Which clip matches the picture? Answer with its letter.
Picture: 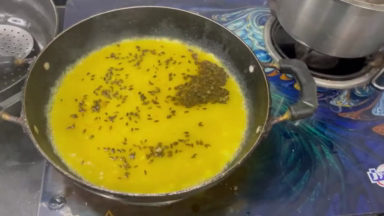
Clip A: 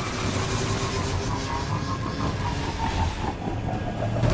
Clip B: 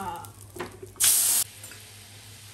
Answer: B